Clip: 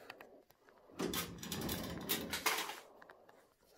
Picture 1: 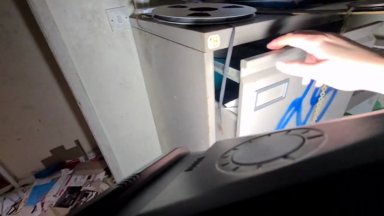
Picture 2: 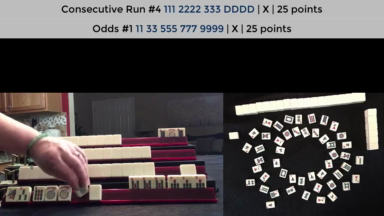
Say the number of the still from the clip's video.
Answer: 1